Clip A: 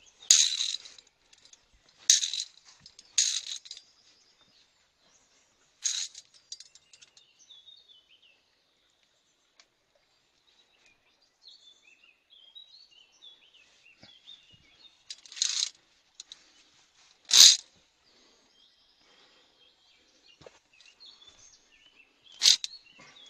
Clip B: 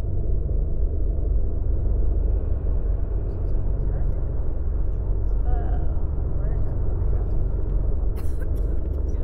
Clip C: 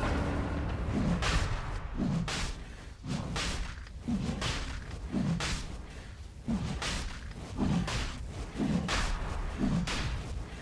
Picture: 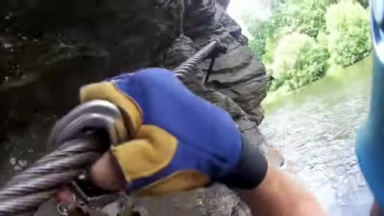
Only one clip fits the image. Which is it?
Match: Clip A